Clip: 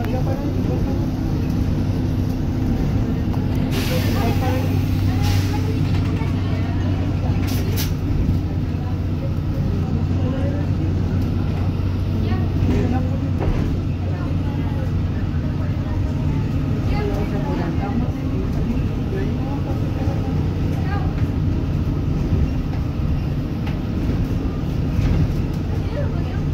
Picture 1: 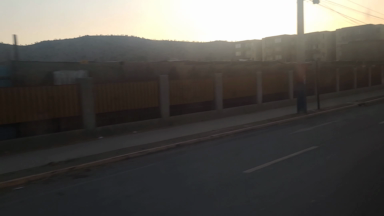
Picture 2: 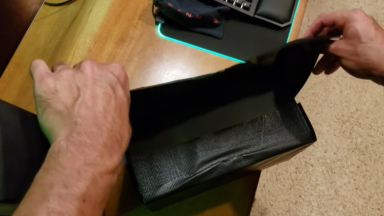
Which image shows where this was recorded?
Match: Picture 1